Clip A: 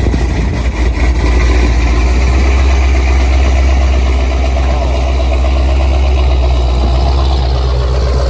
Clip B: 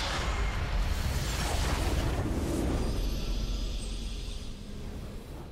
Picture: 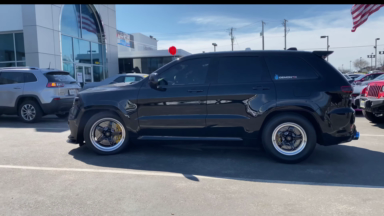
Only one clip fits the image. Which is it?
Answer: A